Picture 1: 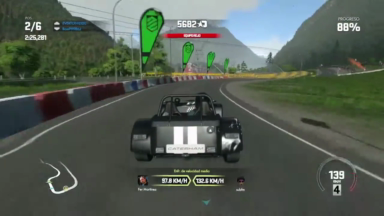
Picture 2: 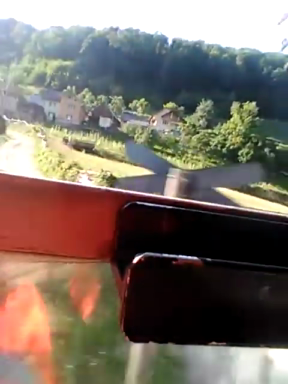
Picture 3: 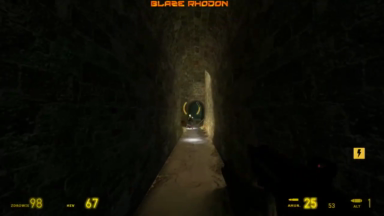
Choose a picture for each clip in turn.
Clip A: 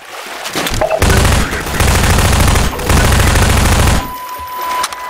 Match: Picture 3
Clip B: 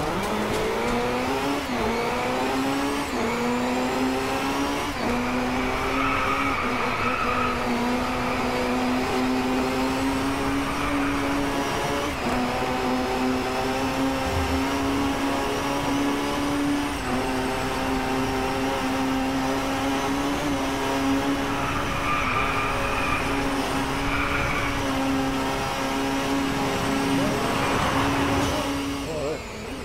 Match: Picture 1